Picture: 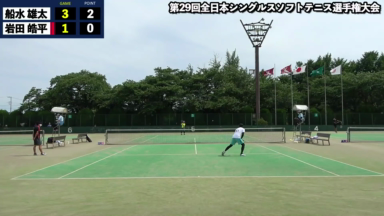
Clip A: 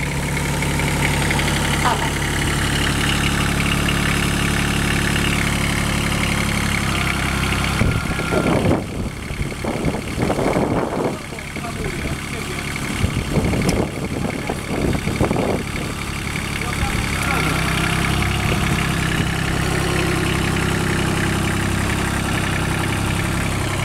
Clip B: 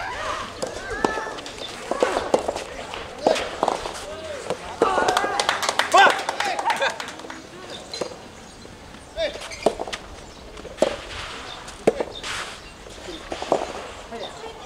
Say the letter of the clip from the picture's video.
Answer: B